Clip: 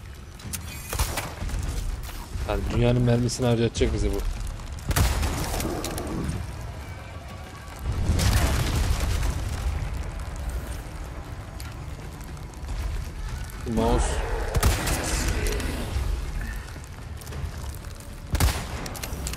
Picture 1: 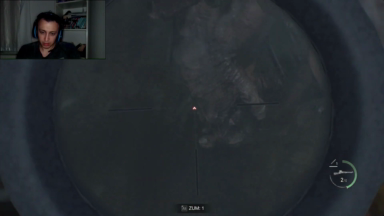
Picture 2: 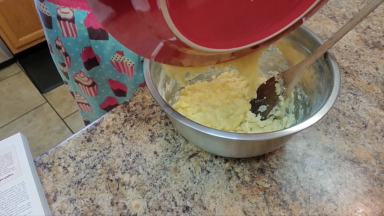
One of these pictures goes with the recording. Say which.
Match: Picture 1